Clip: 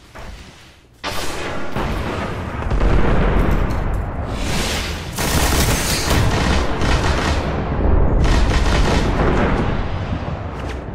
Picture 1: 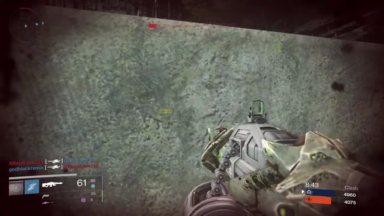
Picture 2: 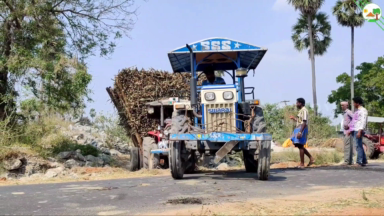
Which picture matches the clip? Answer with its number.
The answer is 1